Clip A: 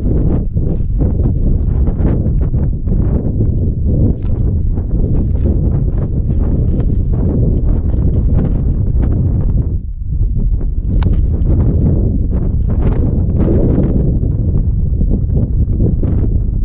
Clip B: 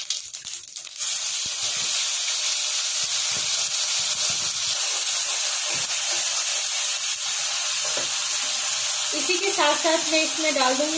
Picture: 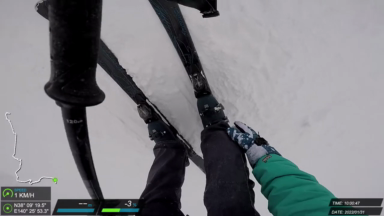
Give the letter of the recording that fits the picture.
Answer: A